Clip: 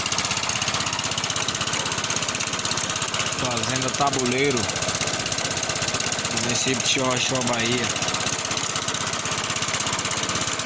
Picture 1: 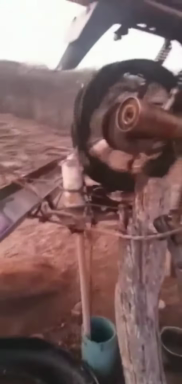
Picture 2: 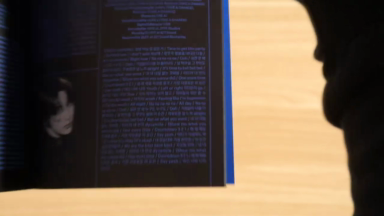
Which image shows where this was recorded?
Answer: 1